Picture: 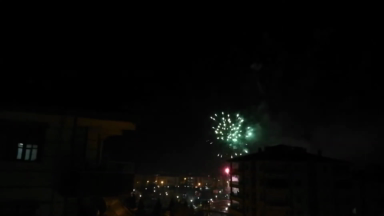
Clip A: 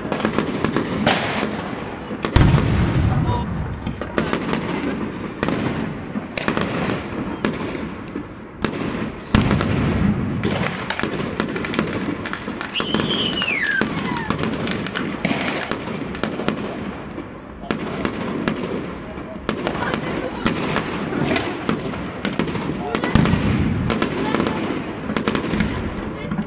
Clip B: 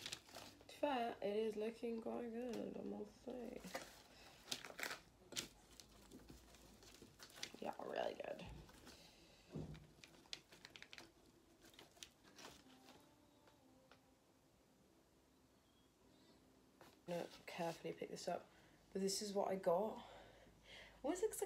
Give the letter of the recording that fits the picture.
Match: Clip A